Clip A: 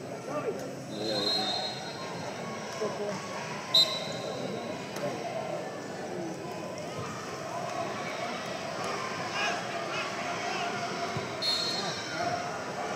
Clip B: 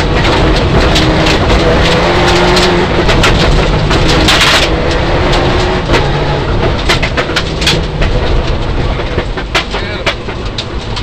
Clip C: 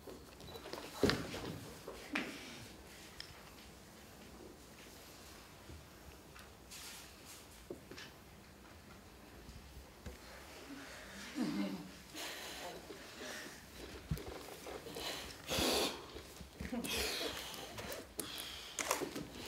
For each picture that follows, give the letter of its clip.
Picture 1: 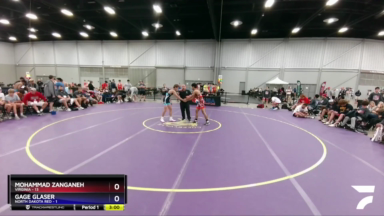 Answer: A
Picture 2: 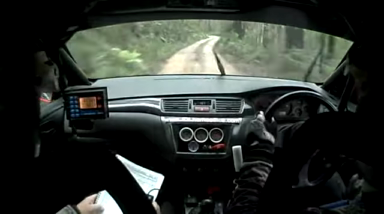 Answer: B